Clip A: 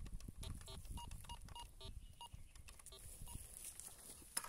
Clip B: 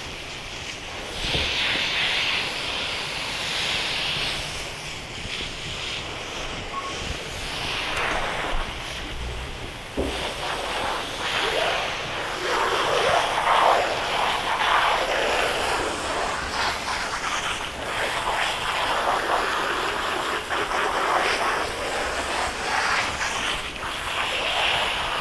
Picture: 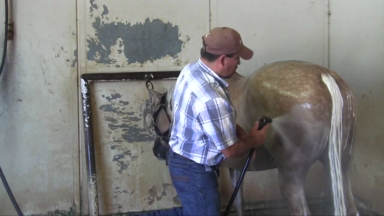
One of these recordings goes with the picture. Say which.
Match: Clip B